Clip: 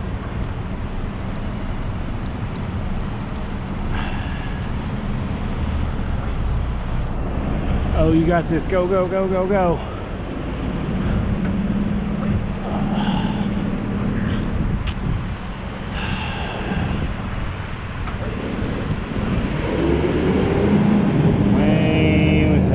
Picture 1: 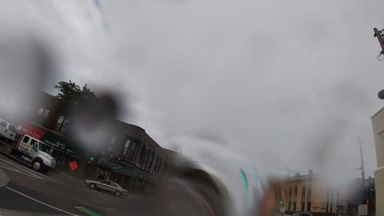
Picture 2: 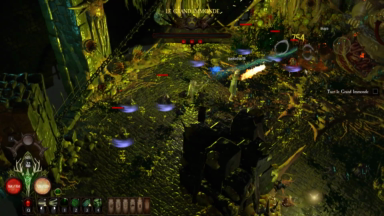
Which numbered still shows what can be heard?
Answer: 1